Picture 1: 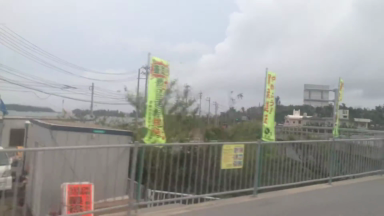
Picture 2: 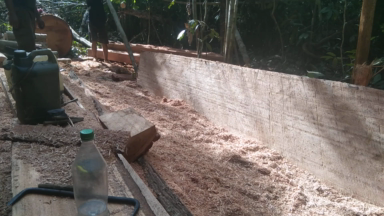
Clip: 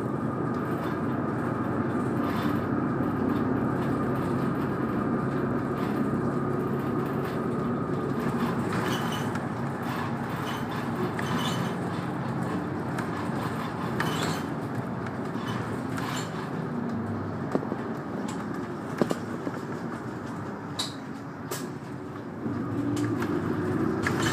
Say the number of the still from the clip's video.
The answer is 1